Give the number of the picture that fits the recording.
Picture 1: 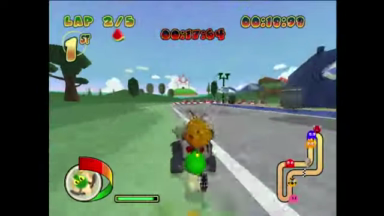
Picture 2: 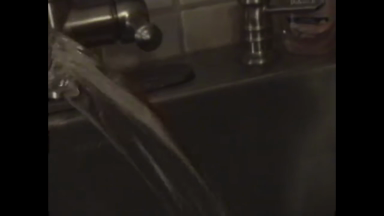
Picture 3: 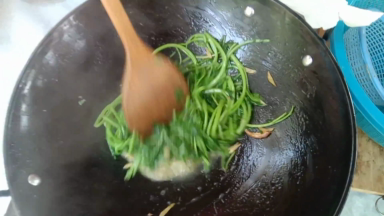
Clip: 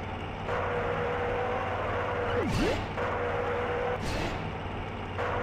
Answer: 1